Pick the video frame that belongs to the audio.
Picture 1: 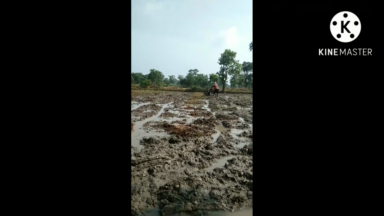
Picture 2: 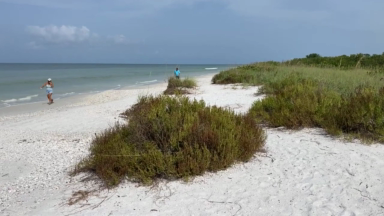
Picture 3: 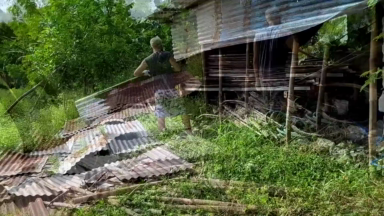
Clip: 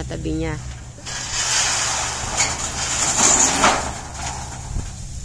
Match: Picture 3